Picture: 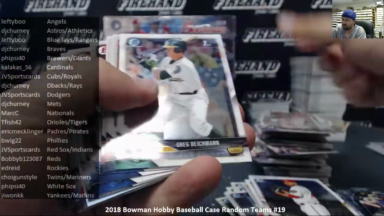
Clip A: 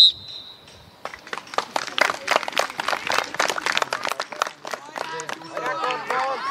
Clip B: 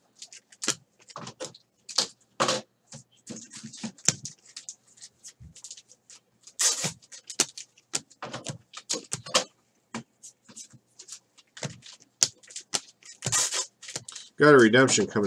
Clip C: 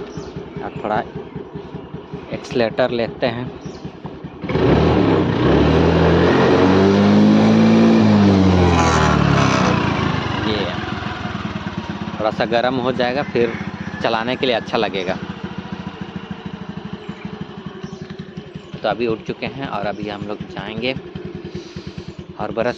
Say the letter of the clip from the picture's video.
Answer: B